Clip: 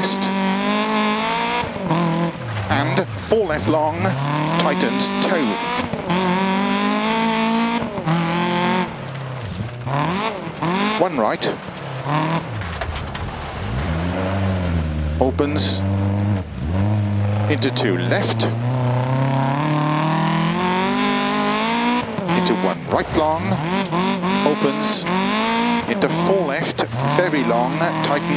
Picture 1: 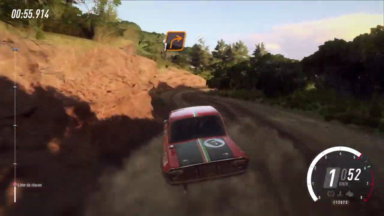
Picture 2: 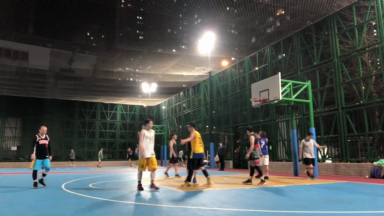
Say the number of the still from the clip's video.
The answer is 1